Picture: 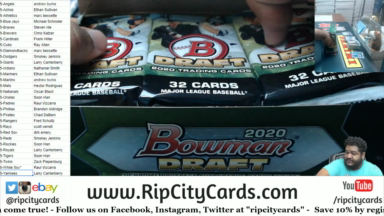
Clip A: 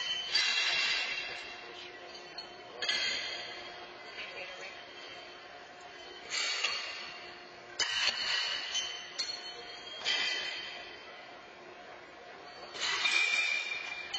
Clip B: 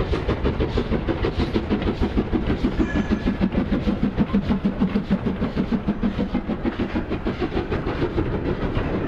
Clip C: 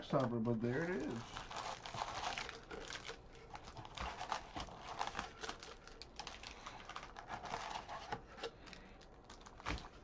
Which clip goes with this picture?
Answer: C